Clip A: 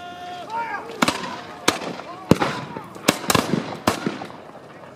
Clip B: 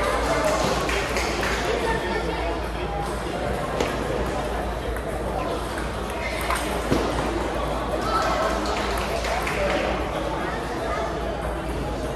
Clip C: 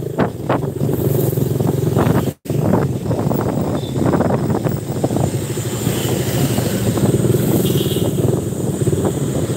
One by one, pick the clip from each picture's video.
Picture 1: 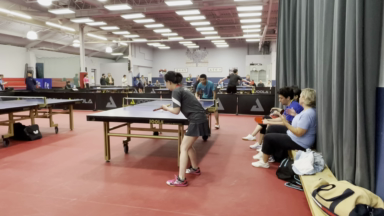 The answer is B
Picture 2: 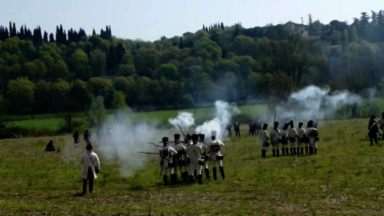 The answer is A